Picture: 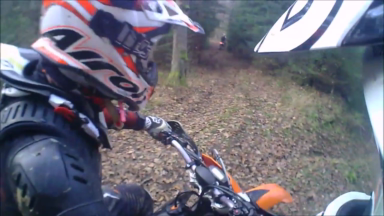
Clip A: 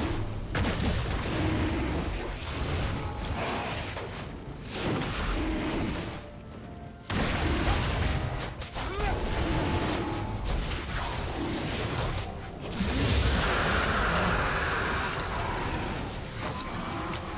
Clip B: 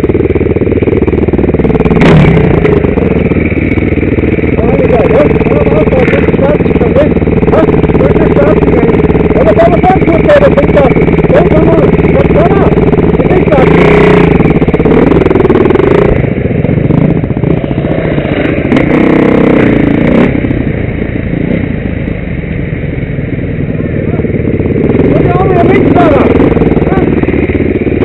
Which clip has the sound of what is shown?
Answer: B